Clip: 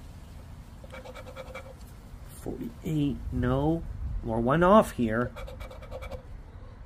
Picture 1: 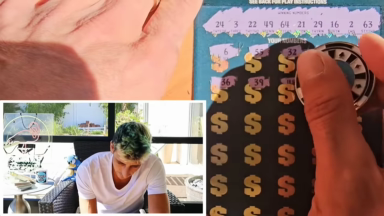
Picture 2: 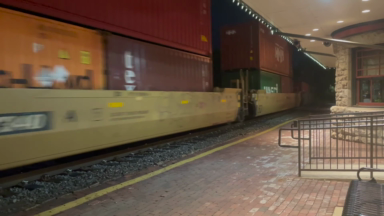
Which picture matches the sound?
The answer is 1